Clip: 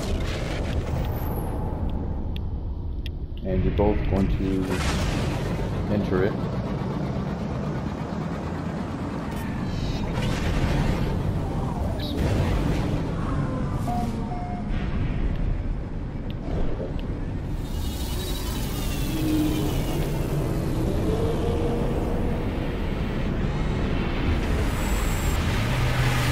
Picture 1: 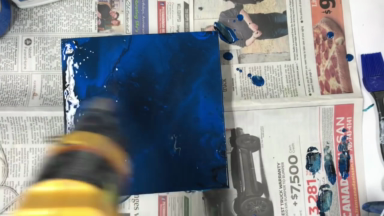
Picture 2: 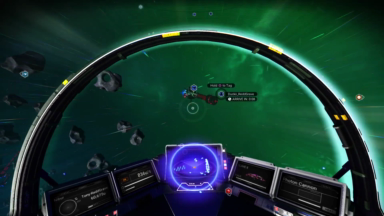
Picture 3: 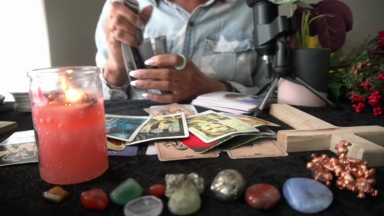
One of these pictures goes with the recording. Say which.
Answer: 2